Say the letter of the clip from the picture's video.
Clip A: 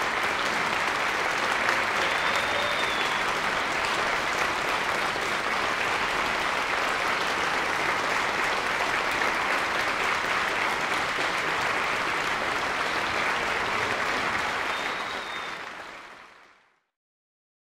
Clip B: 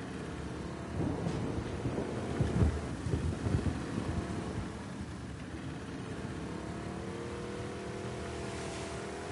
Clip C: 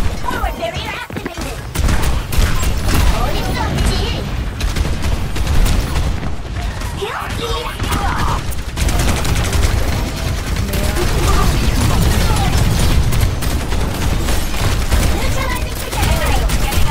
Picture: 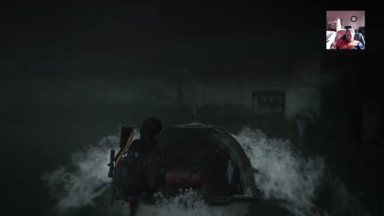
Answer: B